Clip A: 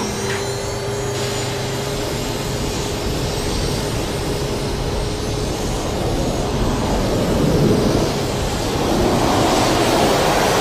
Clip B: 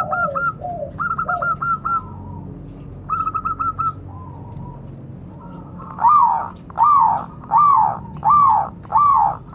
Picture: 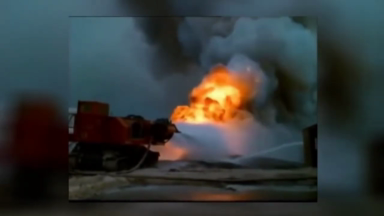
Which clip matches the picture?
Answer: A